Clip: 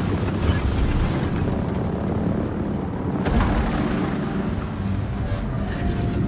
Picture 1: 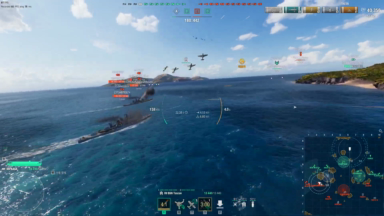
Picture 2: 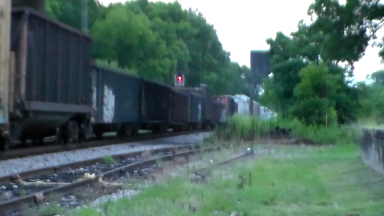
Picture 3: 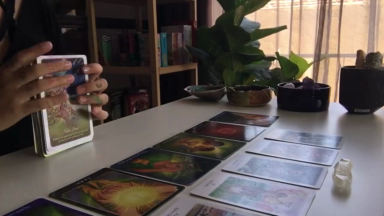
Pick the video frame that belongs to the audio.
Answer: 1